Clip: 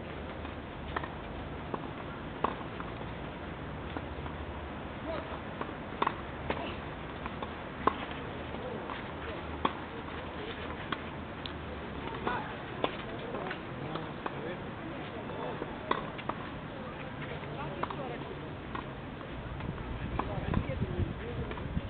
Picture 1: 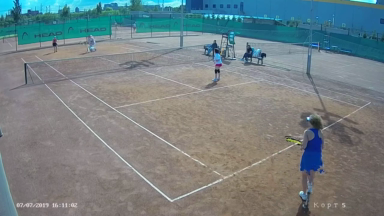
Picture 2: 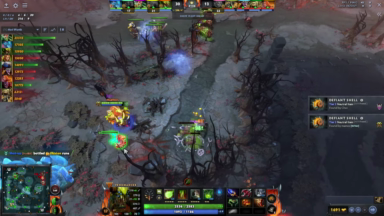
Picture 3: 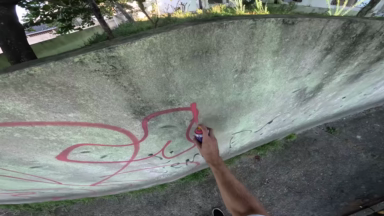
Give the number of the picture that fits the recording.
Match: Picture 1